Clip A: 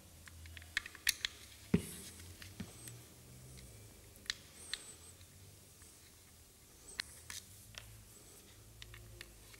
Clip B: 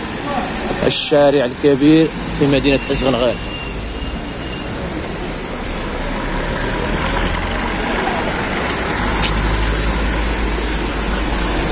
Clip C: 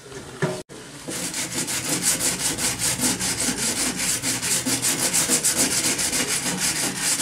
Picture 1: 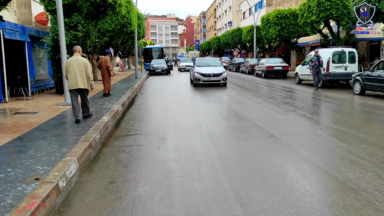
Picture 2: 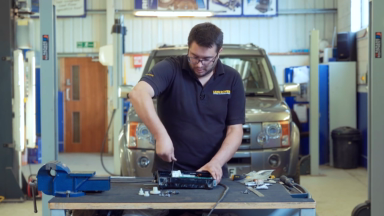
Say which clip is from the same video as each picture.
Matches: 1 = B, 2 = A